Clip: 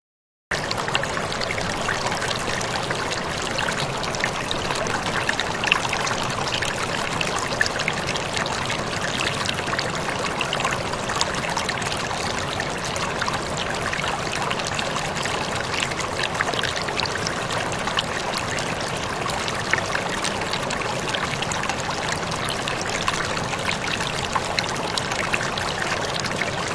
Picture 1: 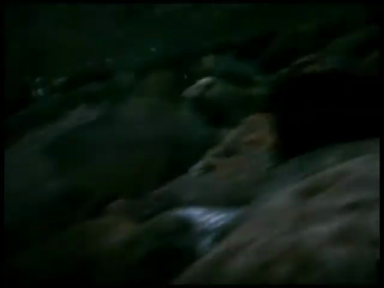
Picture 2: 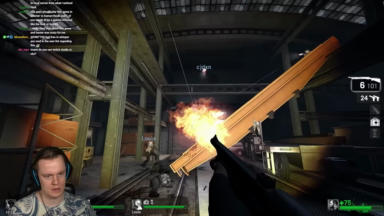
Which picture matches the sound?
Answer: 1